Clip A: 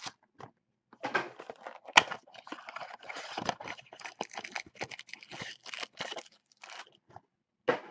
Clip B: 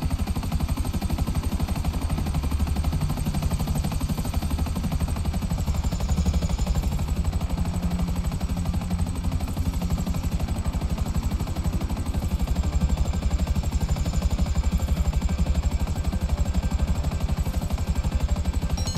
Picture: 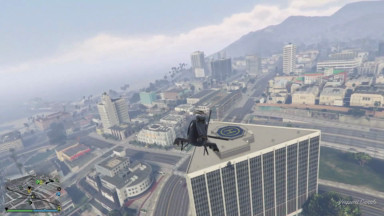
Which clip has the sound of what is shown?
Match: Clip B